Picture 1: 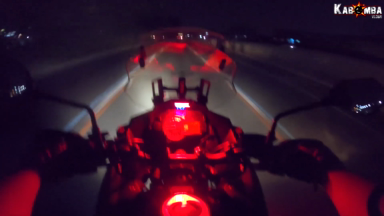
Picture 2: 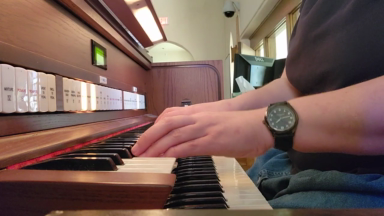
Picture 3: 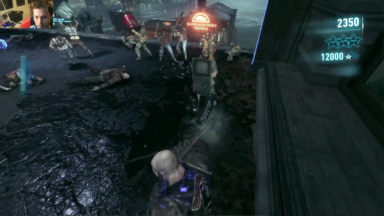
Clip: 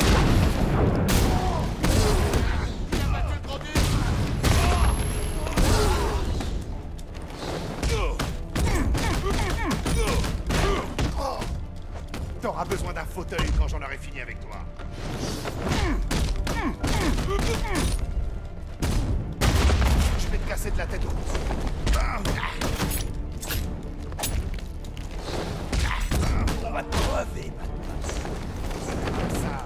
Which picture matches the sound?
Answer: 3